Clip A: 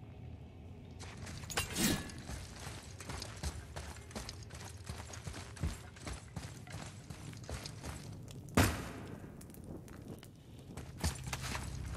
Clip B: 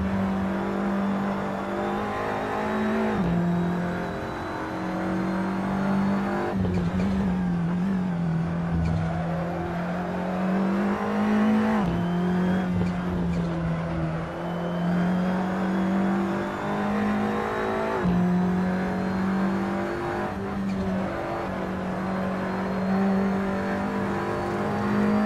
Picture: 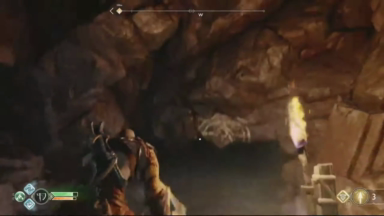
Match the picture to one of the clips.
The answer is A